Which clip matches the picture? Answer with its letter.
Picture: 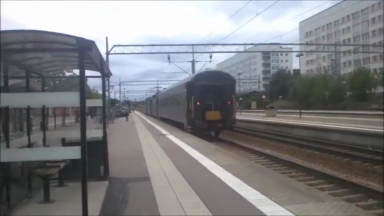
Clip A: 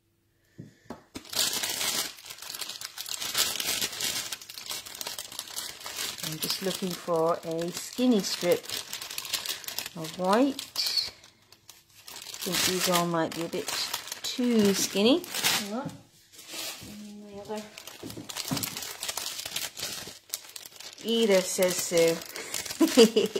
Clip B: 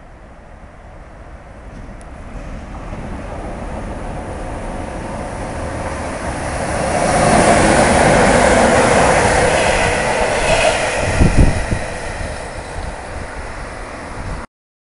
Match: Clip B